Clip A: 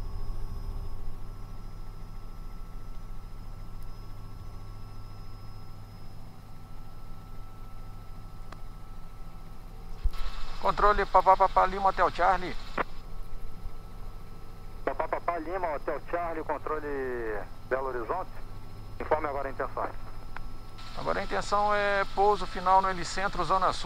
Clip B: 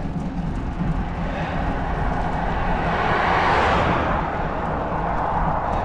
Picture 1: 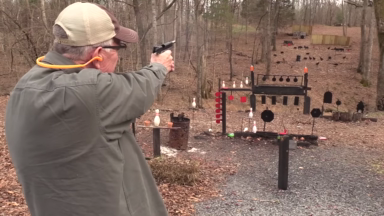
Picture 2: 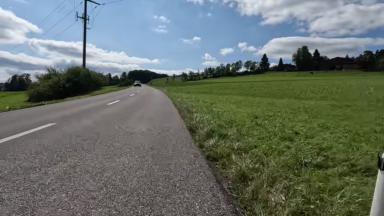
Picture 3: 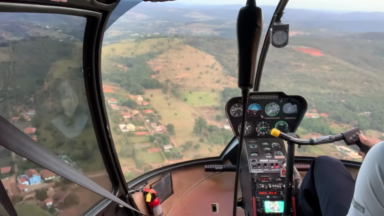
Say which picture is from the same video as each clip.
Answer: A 3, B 2